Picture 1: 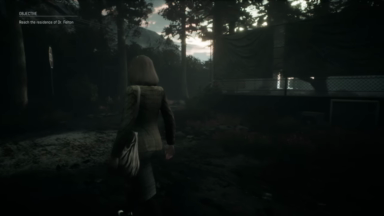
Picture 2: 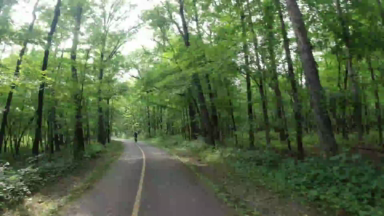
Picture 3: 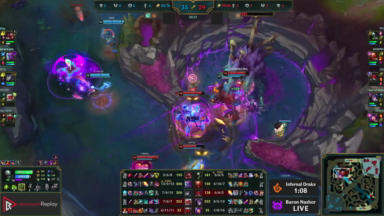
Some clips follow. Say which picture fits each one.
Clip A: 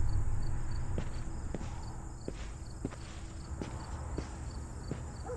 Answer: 1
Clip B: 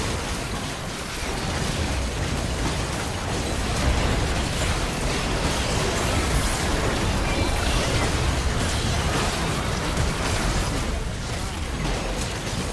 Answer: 3